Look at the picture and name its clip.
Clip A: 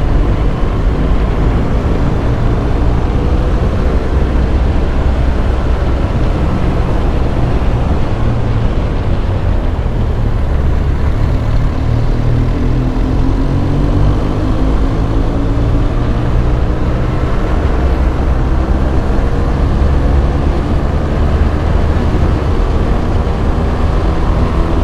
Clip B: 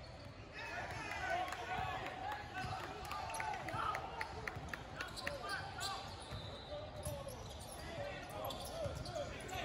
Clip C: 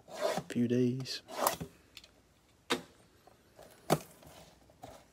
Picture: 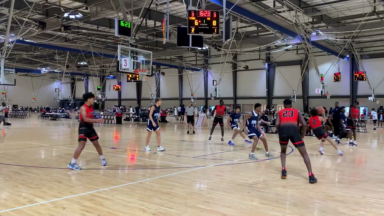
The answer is B